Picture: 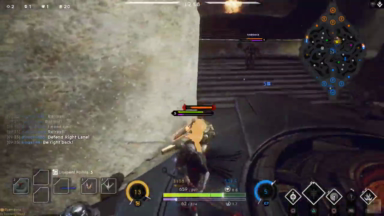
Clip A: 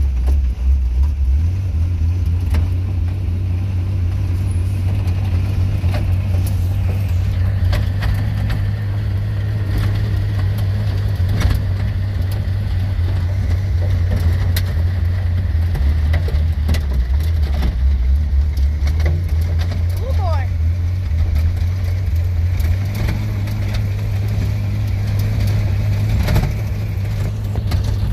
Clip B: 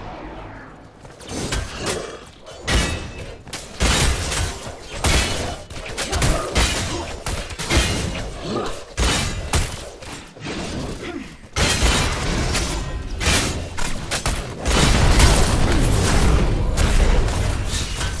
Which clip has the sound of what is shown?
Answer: B